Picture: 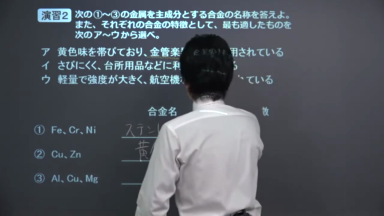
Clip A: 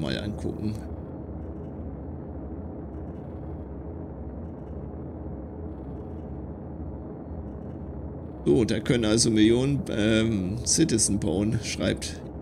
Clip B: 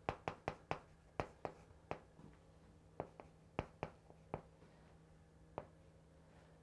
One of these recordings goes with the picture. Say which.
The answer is B